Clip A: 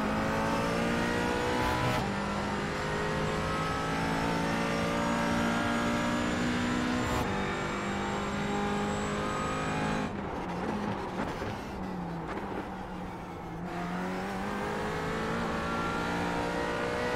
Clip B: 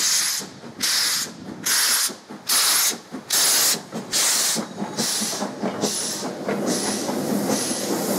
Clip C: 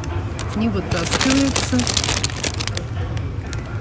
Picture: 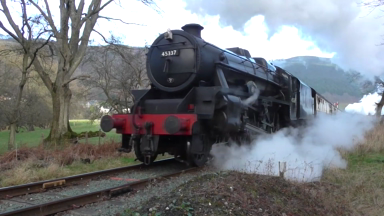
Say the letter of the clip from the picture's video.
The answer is B